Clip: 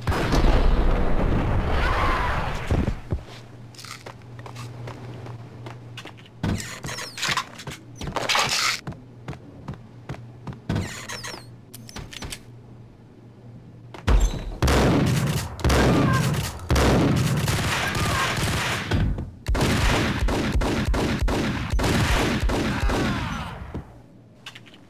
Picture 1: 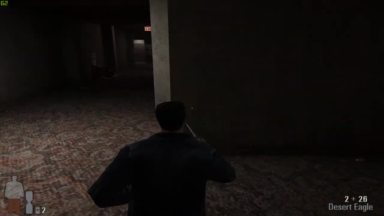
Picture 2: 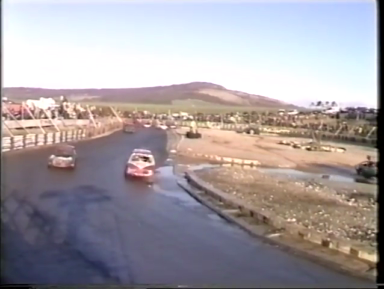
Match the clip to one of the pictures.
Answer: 1